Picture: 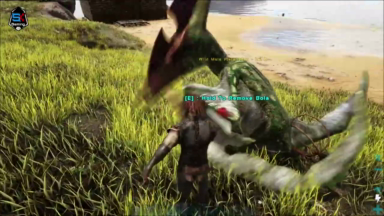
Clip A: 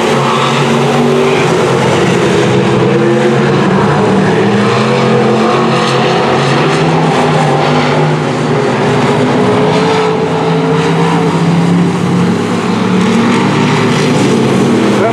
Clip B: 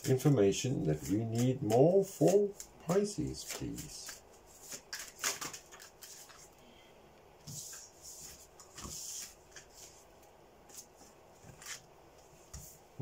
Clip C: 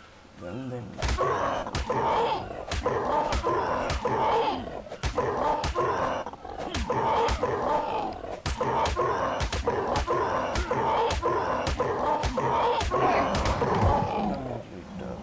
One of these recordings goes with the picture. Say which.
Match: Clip C